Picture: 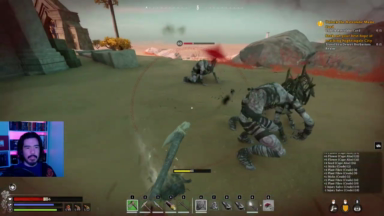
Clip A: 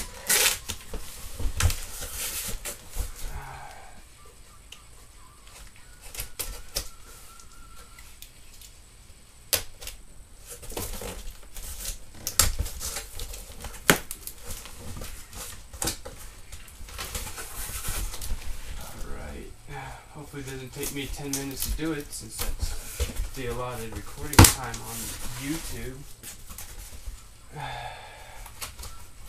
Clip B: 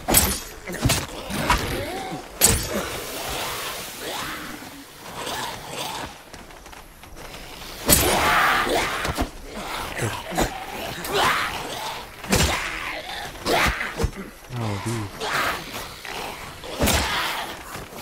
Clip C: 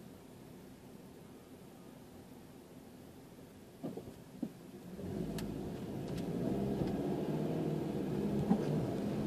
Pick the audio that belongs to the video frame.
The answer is B